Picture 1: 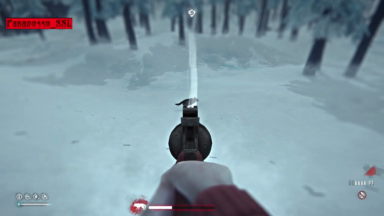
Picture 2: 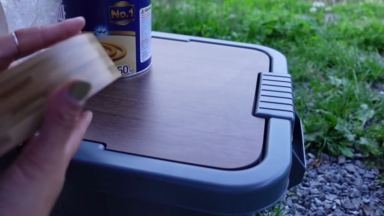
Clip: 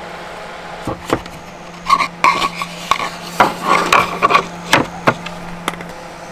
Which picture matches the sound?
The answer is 2